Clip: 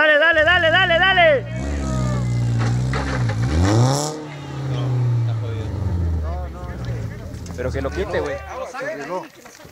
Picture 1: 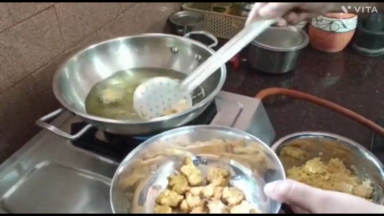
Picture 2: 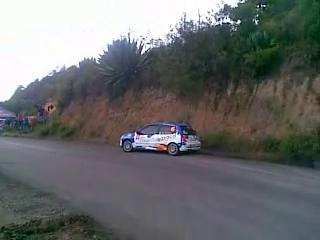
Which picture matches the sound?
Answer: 2